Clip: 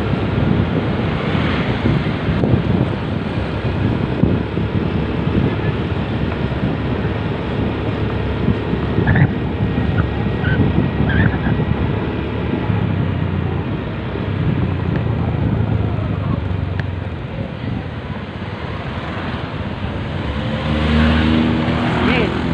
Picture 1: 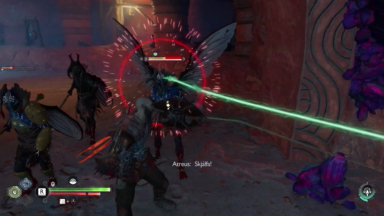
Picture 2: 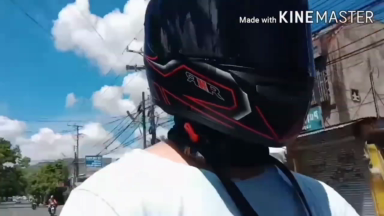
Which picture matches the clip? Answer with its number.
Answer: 2